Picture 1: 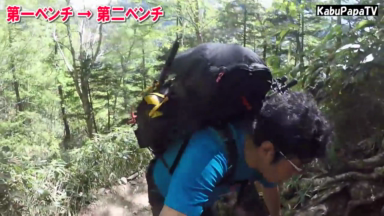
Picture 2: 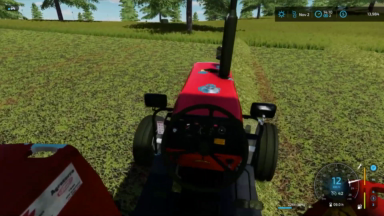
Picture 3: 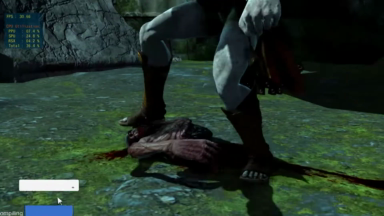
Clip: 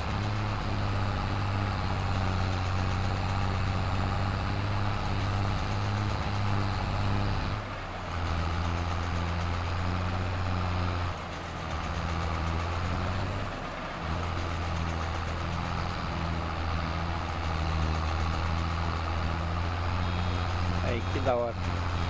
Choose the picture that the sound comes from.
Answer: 2